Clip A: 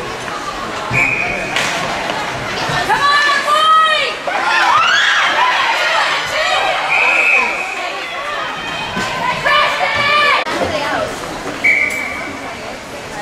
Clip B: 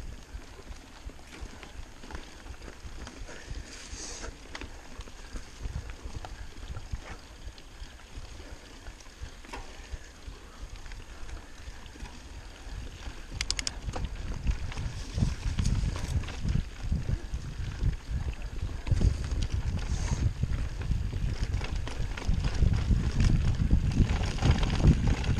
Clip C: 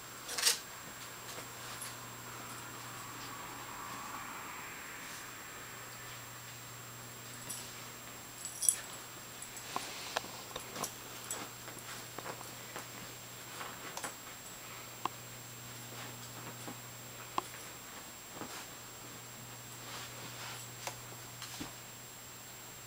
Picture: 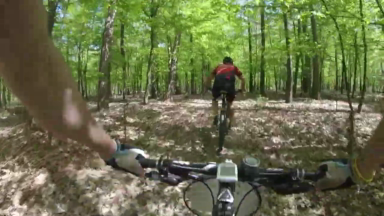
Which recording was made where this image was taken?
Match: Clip B